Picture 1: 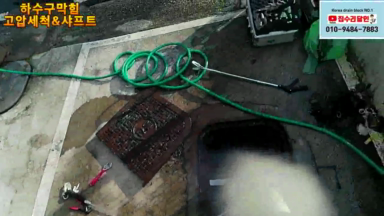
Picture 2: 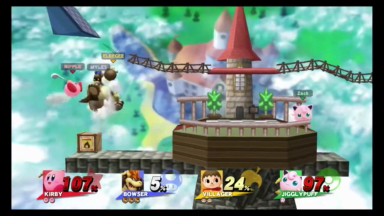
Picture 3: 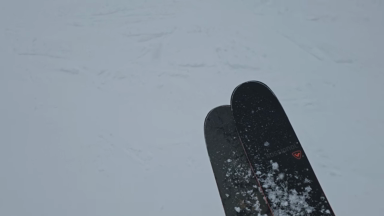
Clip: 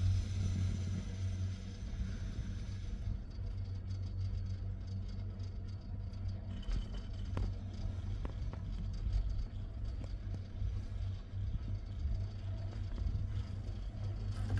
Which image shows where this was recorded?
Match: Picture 3